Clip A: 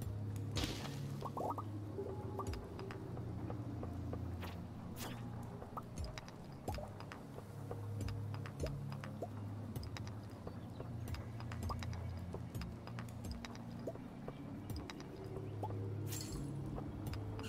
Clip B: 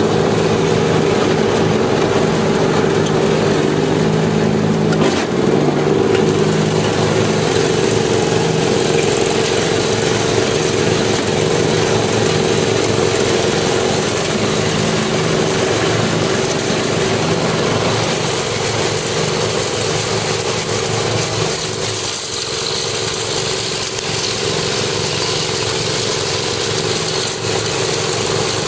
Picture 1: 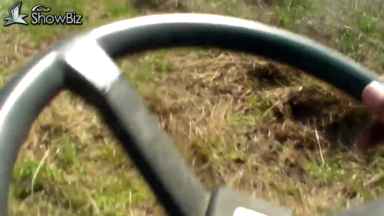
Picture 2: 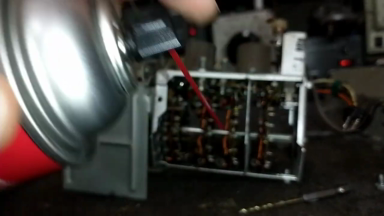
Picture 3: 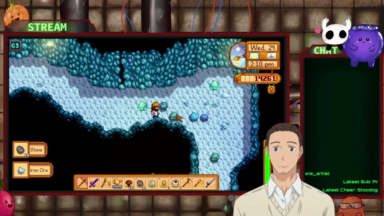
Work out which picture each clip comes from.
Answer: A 3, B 1